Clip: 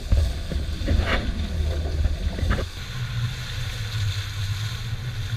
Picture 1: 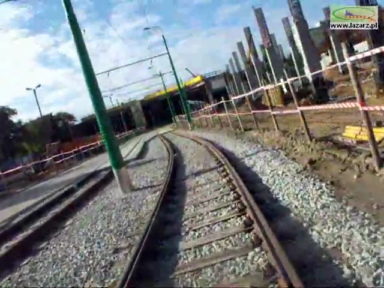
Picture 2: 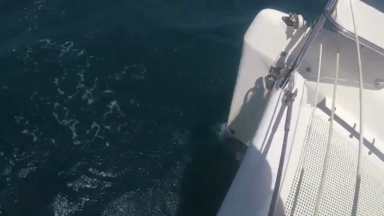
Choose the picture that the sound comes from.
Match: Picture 2